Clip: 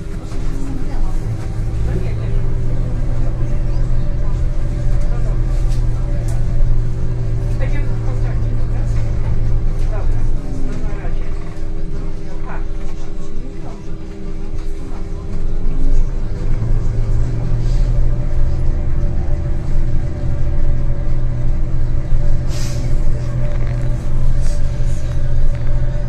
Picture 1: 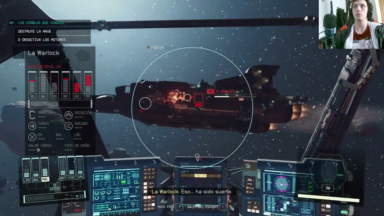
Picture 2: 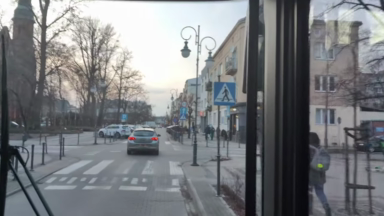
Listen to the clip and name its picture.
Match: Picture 2